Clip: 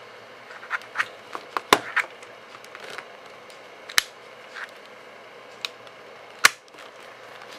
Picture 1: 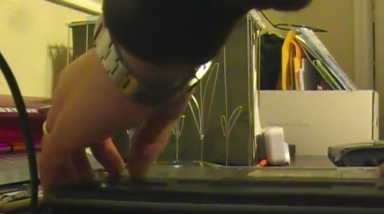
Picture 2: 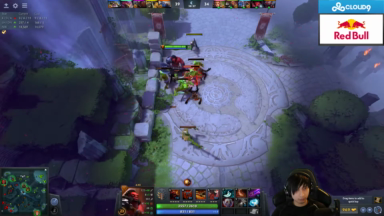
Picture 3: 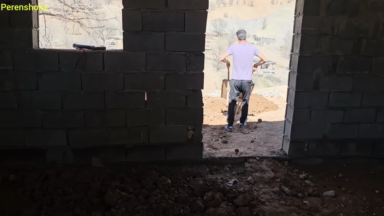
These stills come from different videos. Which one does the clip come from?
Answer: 1